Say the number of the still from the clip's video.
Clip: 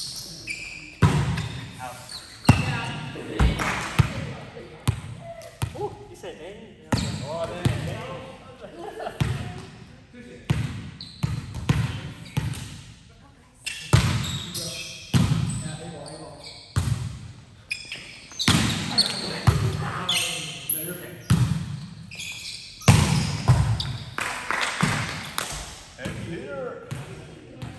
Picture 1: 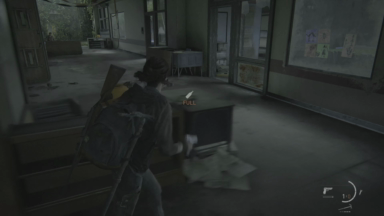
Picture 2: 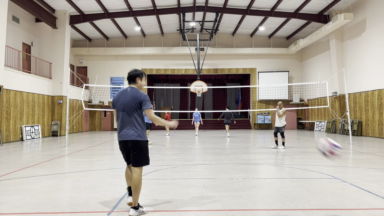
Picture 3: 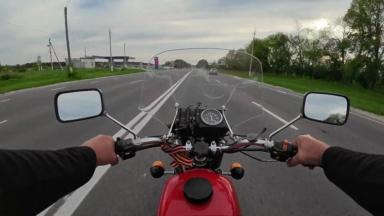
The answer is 2